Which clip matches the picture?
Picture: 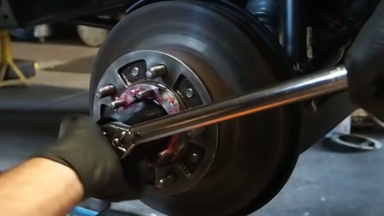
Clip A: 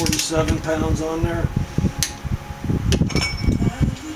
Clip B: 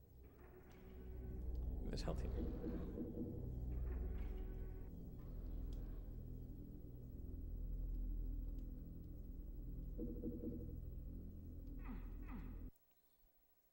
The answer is A